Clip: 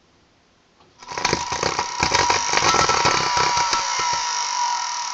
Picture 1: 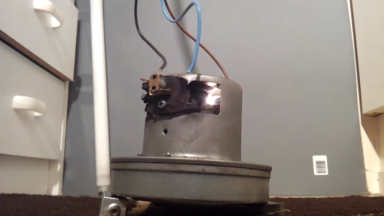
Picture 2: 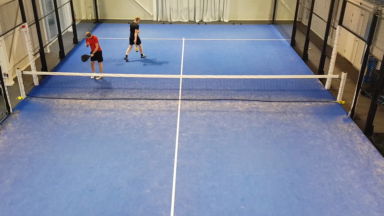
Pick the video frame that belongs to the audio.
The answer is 1